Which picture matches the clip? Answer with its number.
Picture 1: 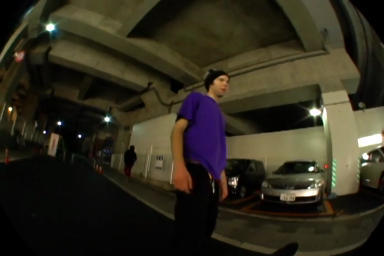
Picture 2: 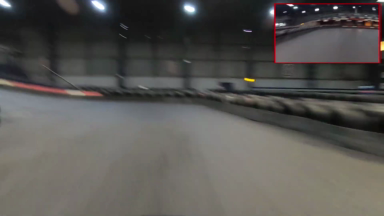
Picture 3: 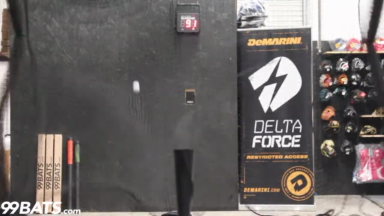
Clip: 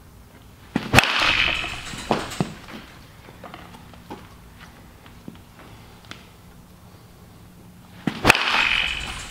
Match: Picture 3